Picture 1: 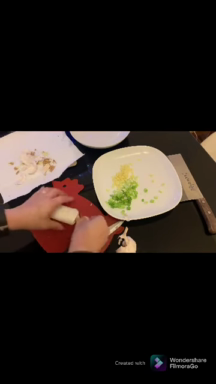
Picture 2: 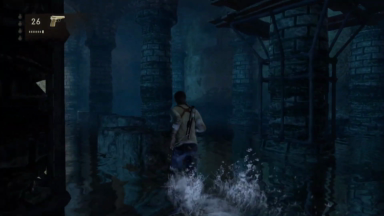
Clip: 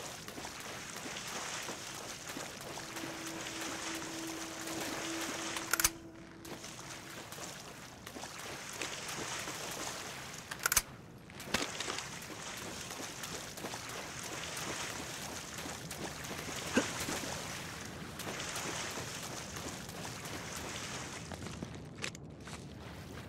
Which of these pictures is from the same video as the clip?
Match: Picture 2